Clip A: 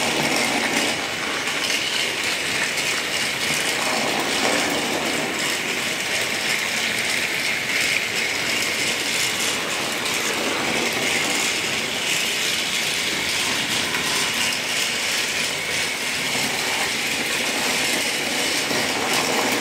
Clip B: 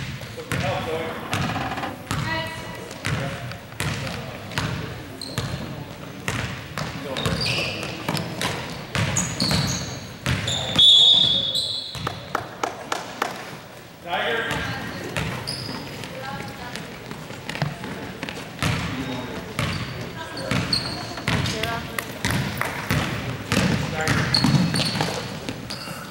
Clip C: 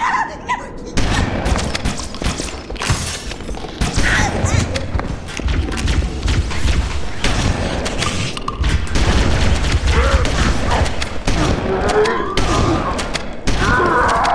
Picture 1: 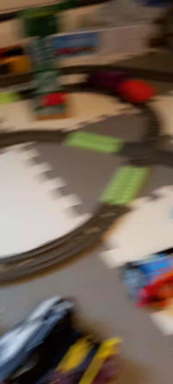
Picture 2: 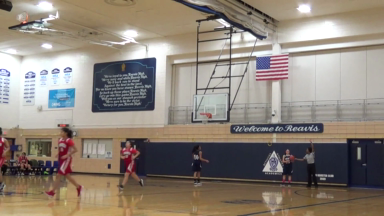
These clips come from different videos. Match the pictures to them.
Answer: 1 A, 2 B